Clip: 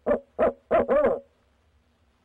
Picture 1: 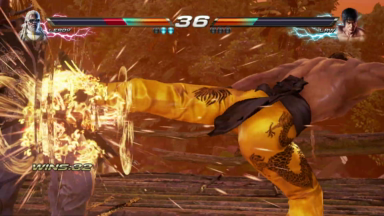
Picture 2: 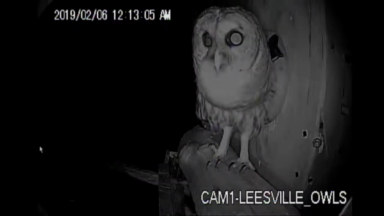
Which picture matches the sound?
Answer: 2